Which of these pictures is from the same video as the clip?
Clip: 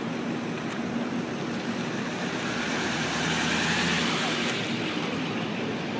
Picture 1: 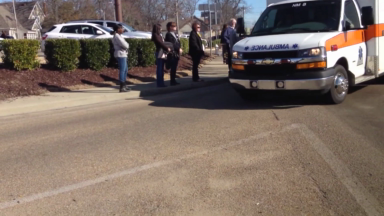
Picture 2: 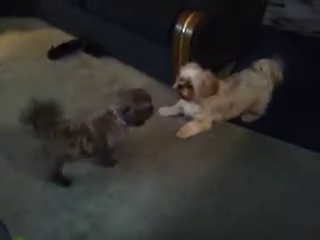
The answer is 1